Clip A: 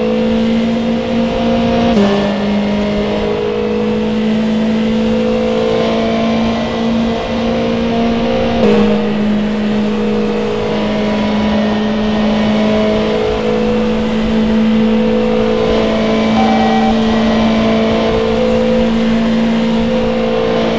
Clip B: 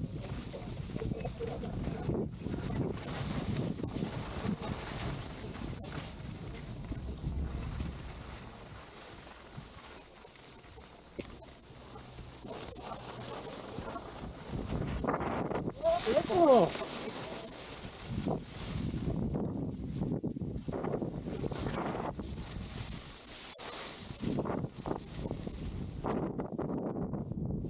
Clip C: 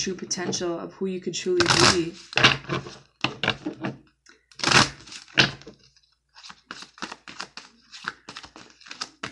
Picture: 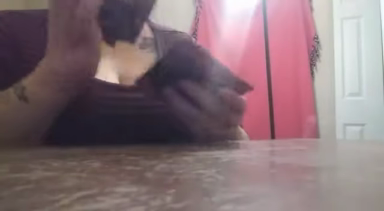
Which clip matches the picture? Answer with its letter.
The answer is C